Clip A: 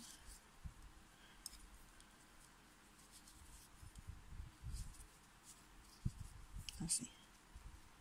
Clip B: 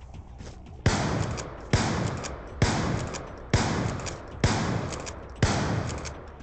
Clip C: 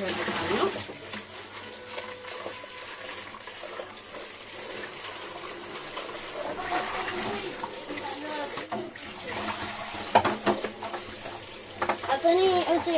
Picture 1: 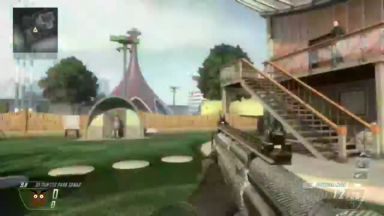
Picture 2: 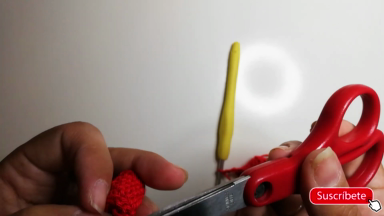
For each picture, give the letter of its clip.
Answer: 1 B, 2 A